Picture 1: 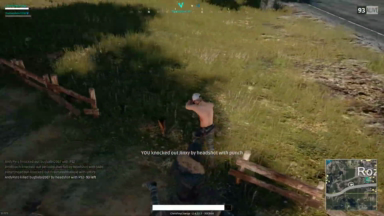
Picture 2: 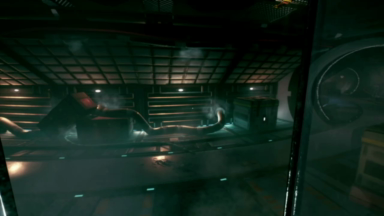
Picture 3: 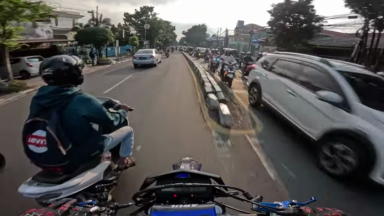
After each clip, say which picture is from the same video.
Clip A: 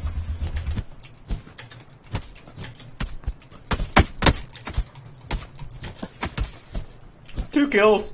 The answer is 1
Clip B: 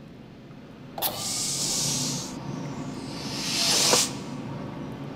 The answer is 2